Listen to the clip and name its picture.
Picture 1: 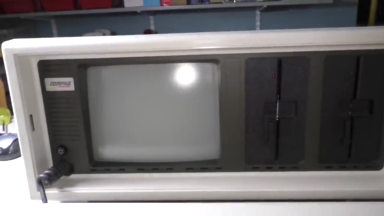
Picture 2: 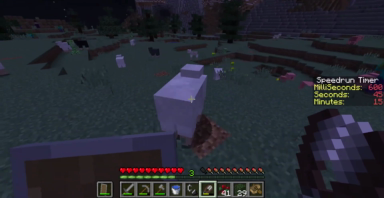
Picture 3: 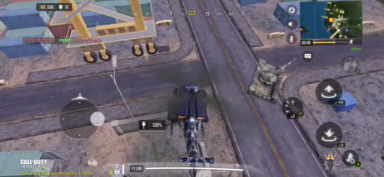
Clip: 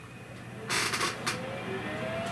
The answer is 1